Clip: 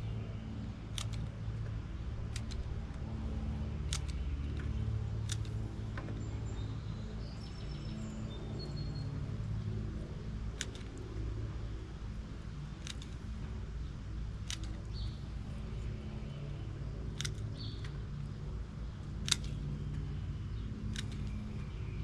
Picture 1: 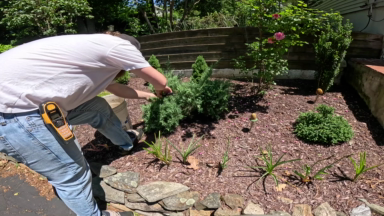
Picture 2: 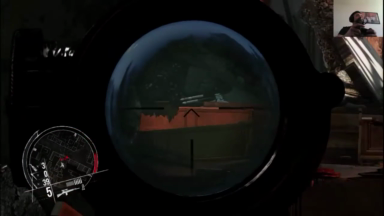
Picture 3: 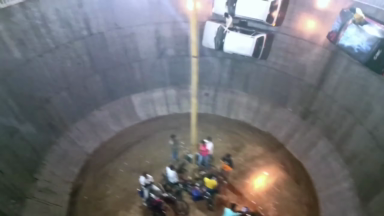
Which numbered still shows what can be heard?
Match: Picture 1